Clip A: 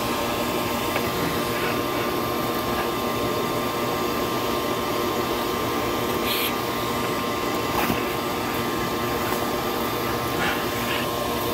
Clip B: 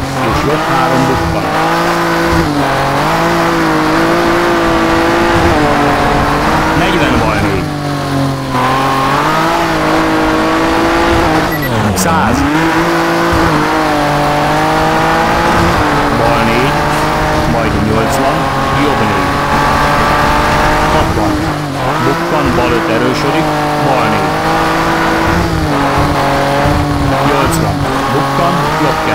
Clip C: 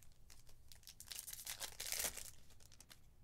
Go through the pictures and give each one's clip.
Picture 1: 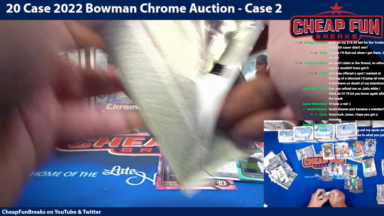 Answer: C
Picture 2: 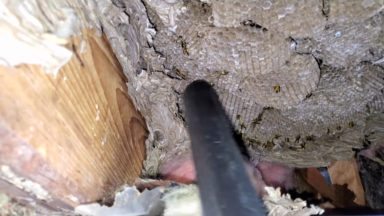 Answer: A